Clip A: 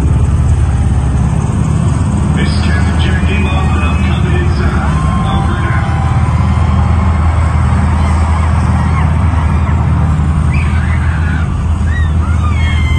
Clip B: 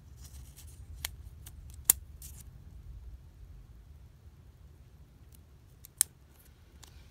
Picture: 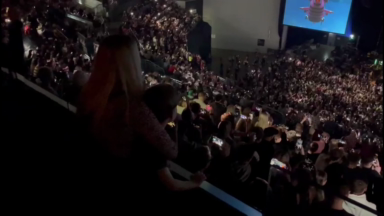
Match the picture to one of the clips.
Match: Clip A